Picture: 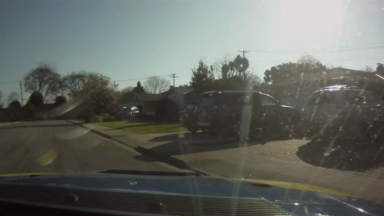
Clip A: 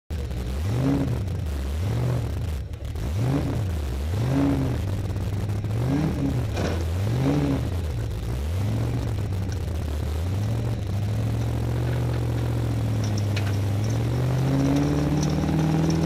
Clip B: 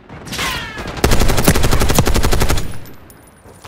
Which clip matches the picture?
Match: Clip A